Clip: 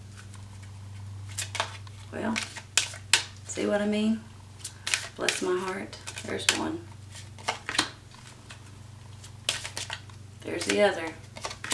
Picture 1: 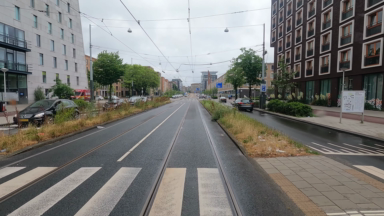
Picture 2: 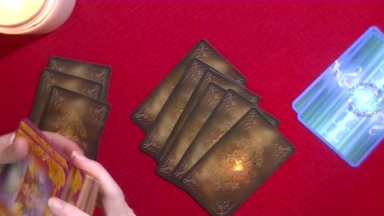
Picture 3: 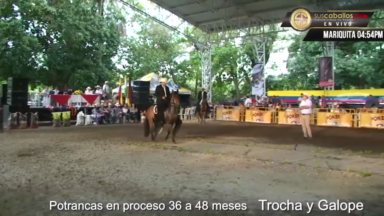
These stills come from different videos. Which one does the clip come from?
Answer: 2